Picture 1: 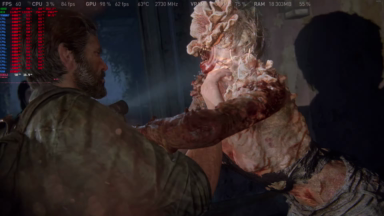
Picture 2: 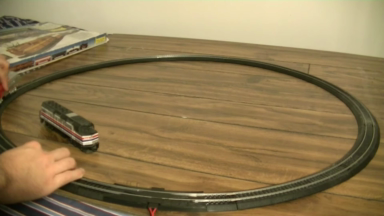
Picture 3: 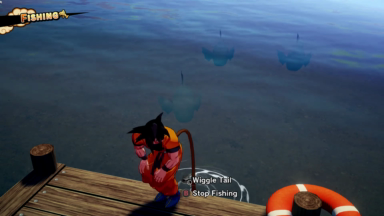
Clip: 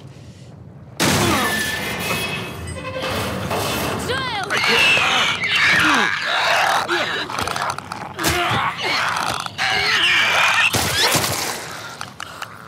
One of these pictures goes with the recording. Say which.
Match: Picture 1